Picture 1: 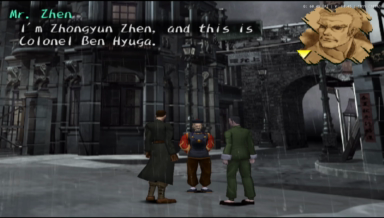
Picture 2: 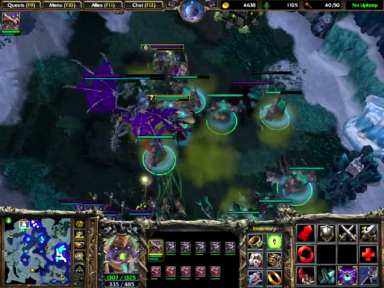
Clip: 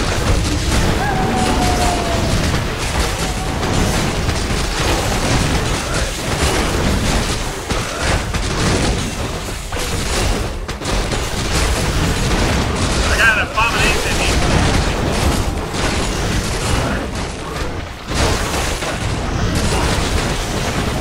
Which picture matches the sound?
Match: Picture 2